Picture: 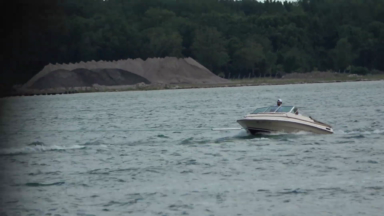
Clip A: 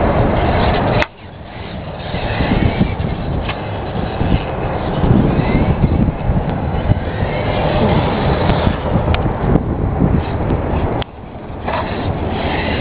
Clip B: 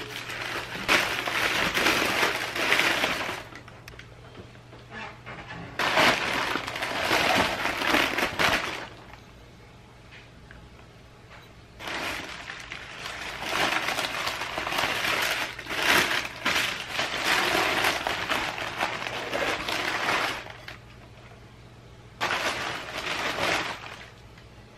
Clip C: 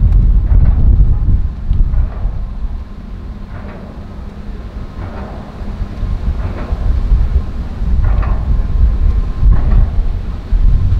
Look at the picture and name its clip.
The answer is C